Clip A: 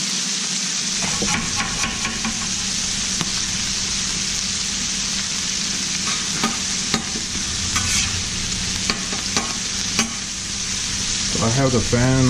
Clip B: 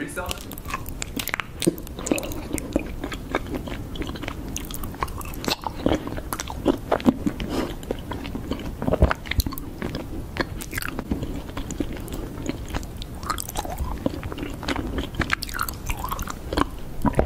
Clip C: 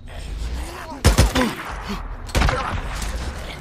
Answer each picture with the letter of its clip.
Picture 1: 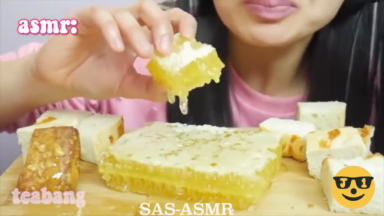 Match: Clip B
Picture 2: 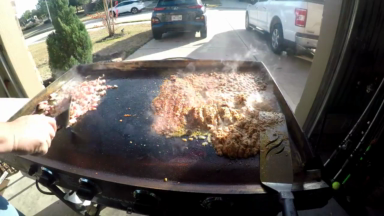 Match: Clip A